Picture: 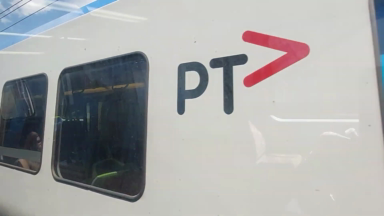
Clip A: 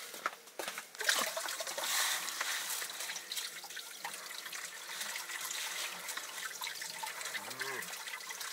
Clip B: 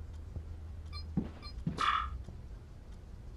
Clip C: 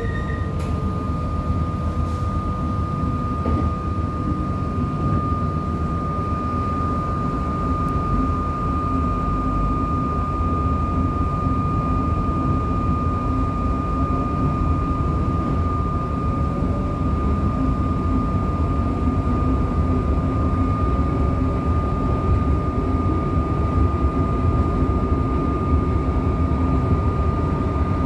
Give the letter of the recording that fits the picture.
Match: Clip C